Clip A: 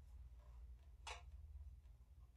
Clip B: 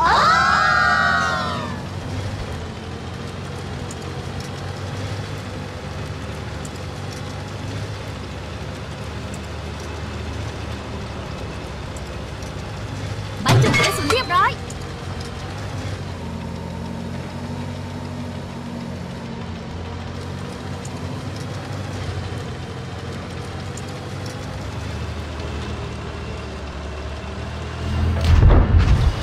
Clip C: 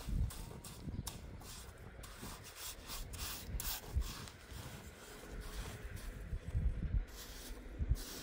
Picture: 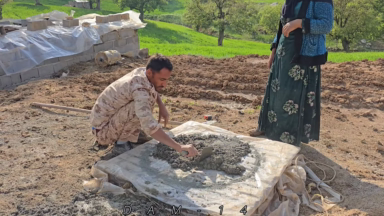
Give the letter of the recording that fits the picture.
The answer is C